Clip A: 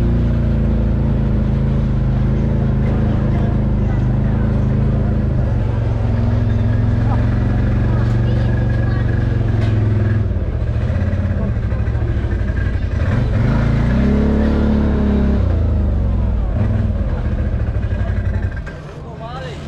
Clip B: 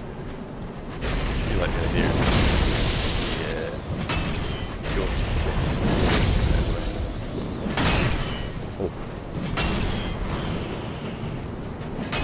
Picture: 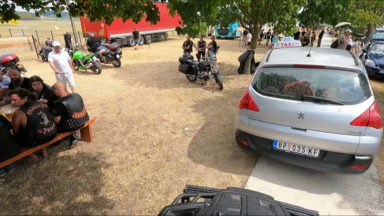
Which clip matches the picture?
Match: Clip A